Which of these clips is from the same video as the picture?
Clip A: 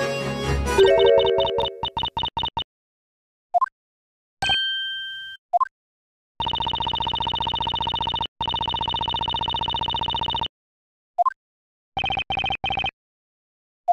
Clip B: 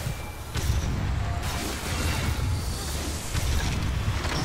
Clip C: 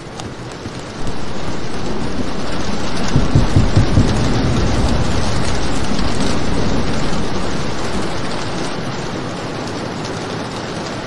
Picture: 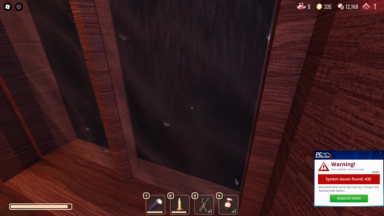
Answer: C